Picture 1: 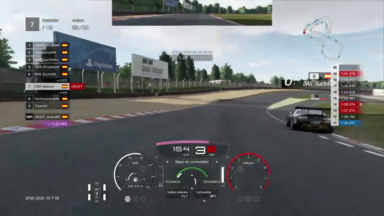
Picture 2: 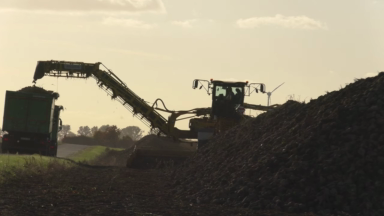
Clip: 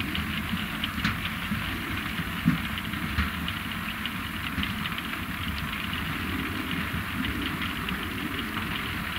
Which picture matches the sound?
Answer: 2